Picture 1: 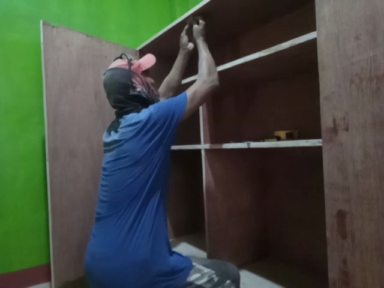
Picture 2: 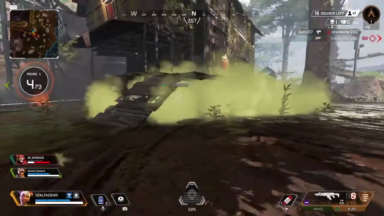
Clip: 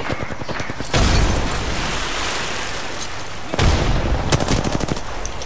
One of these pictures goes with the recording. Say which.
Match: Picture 2